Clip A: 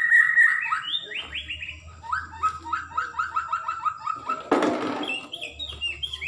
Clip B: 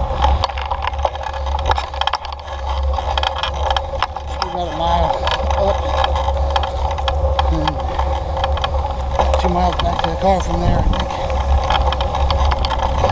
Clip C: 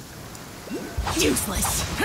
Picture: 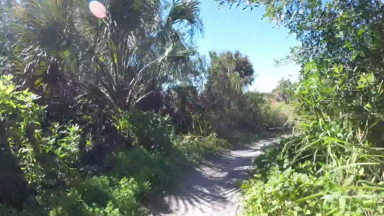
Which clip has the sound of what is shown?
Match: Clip B